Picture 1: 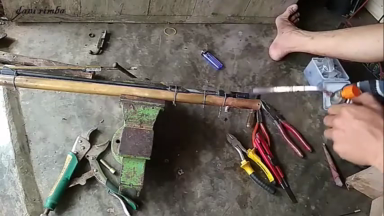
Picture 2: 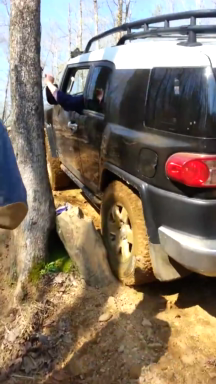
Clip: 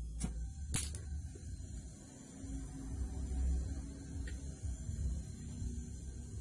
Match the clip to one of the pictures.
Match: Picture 1